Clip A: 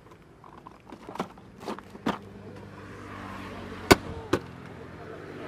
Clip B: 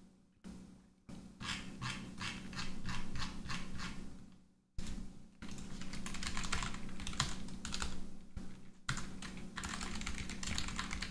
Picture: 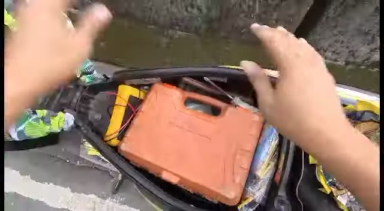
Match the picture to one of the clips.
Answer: A